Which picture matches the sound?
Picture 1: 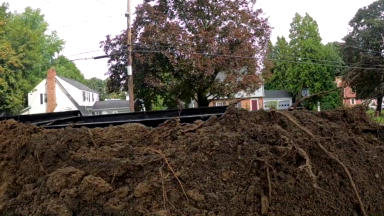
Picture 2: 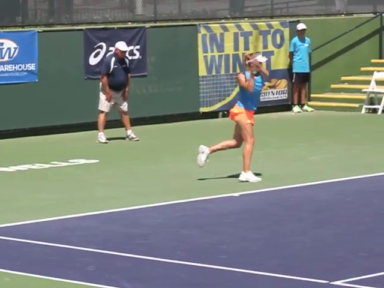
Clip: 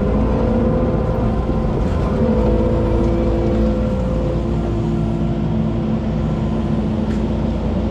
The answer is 1